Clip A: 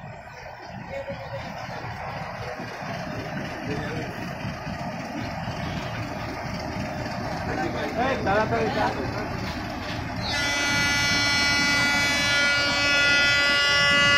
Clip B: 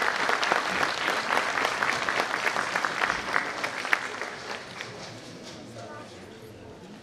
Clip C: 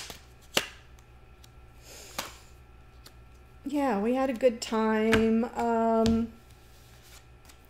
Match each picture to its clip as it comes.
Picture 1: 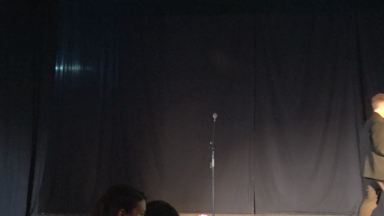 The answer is B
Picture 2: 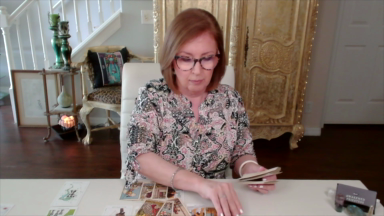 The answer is C